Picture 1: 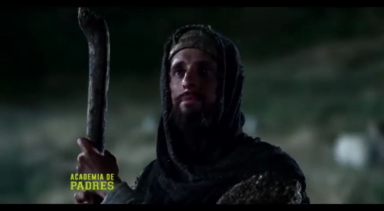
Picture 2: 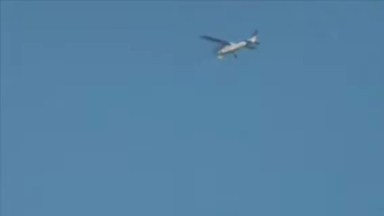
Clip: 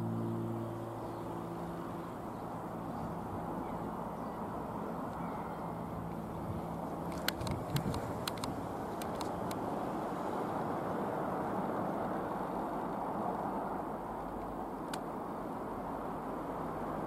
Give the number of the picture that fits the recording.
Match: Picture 2